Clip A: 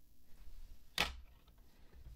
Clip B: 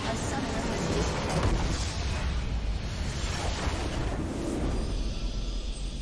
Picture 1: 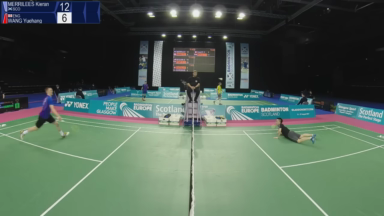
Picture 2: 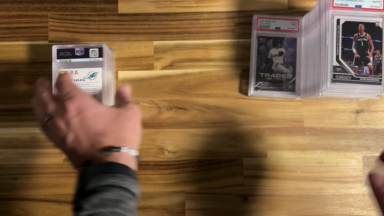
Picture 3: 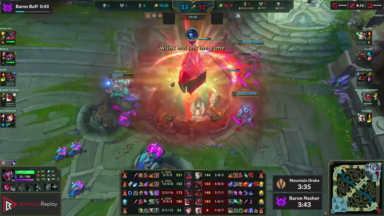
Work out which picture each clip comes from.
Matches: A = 2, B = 3